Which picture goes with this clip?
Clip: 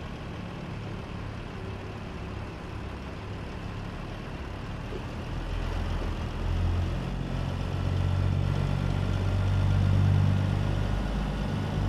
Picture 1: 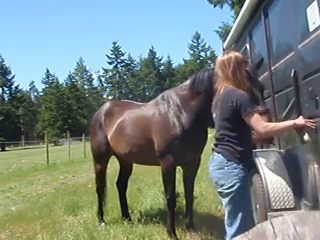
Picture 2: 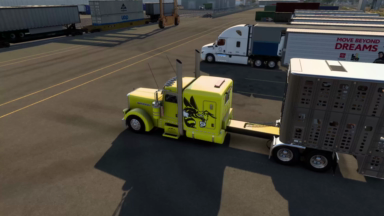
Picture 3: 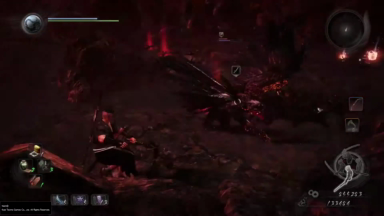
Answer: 2